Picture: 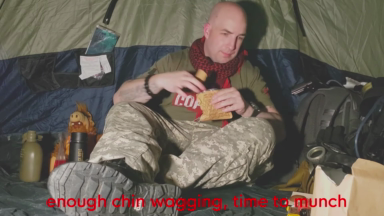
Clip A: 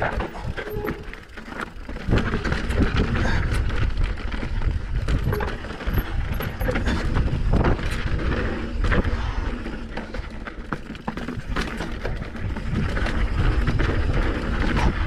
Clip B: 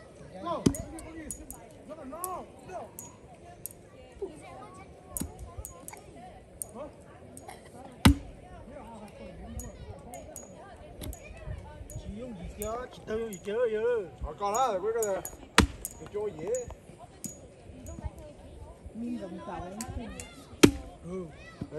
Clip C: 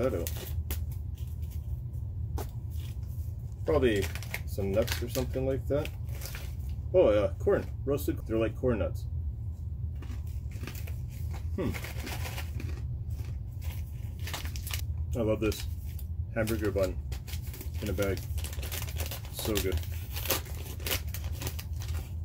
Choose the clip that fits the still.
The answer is C